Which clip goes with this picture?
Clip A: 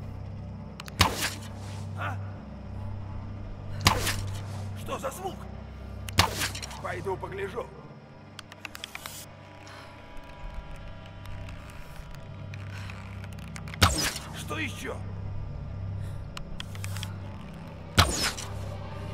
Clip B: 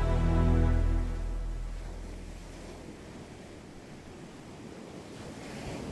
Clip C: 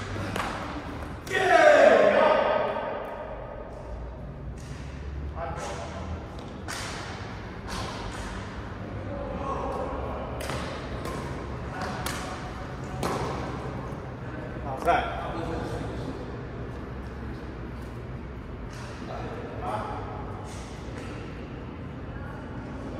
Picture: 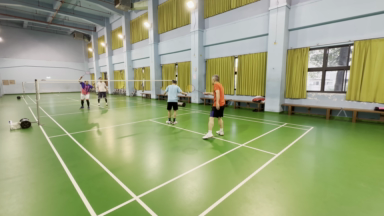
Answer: C